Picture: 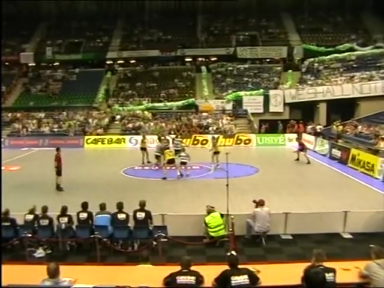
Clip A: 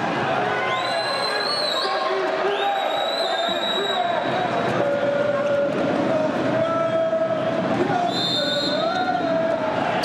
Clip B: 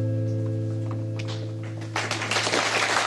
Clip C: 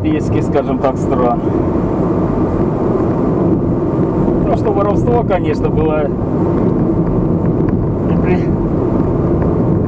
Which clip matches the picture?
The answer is A